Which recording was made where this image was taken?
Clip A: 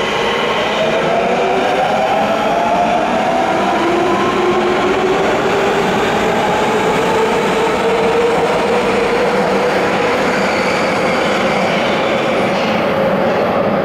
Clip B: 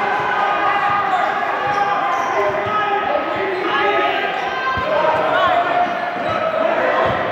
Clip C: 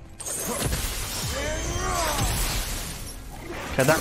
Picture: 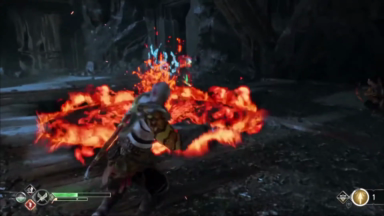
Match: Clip C